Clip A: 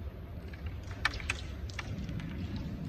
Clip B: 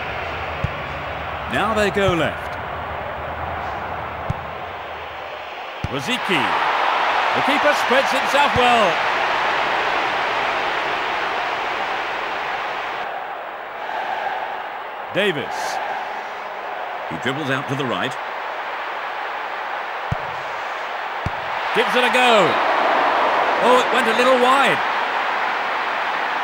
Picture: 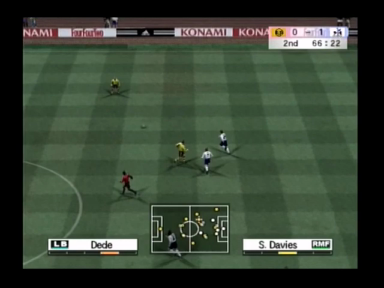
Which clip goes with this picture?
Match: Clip B